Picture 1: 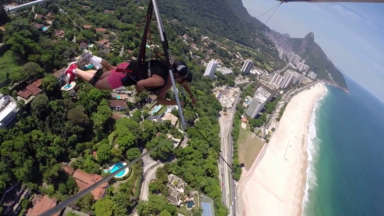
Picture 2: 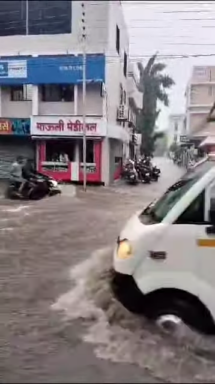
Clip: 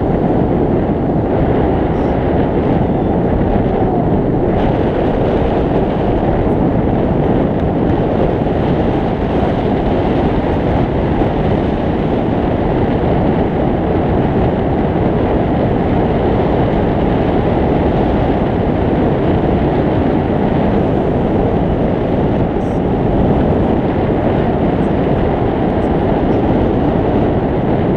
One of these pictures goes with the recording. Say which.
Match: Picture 1